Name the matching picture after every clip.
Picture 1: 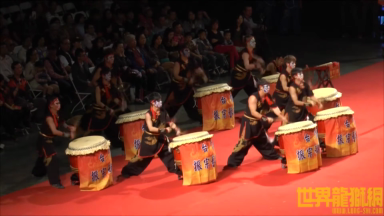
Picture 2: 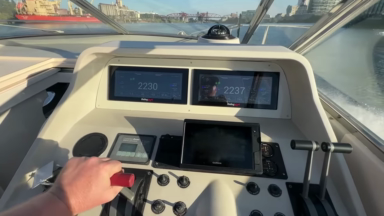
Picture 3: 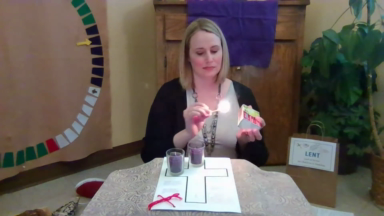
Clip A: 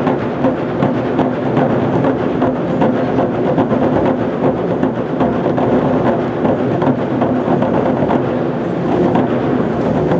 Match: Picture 1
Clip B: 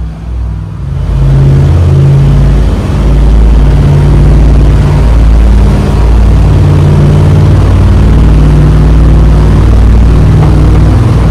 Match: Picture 2